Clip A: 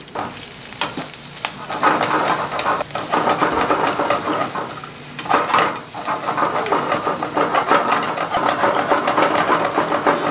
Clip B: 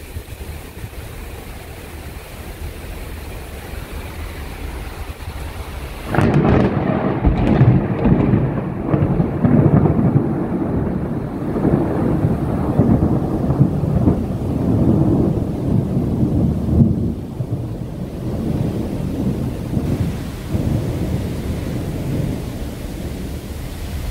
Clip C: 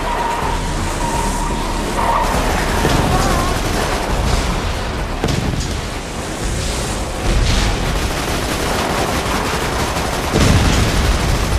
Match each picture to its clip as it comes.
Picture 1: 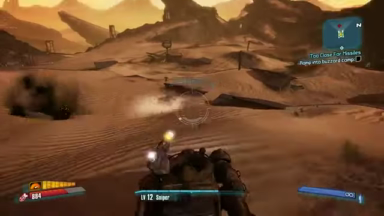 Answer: C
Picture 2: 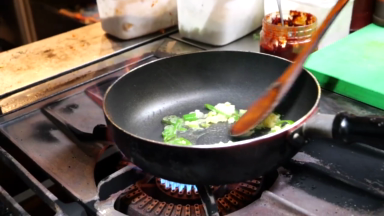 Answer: A